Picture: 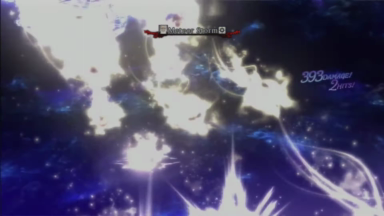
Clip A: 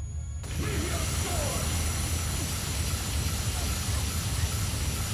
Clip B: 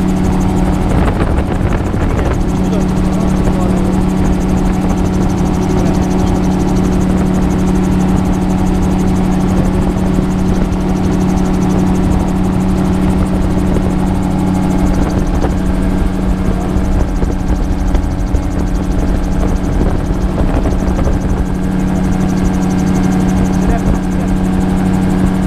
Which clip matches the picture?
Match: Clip A